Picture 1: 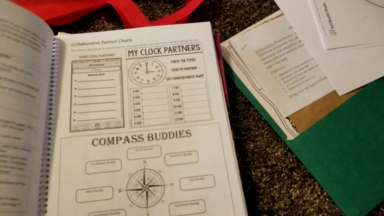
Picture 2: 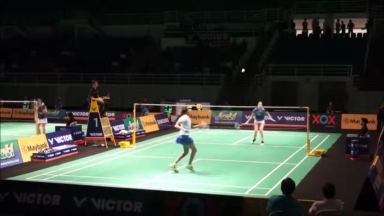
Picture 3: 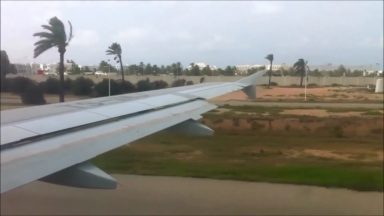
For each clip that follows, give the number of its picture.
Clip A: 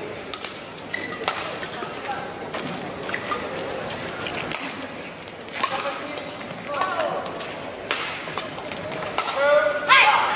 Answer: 2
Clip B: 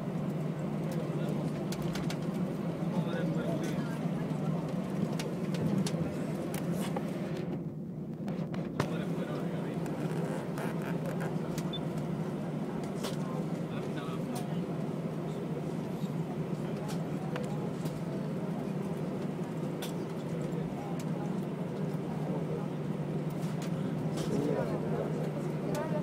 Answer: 3